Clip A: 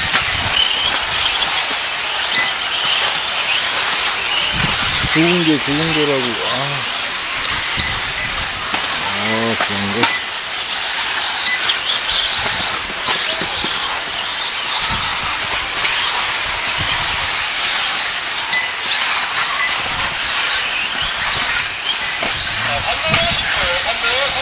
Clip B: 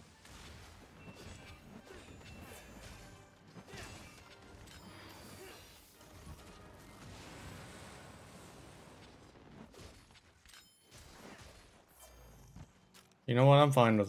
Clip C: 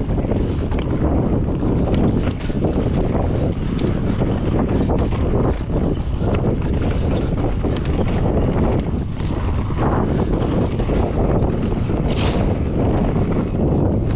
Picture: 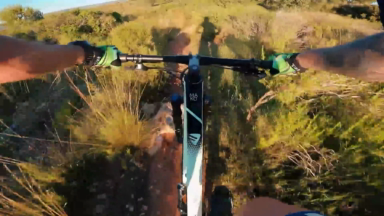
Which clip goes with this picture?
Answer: C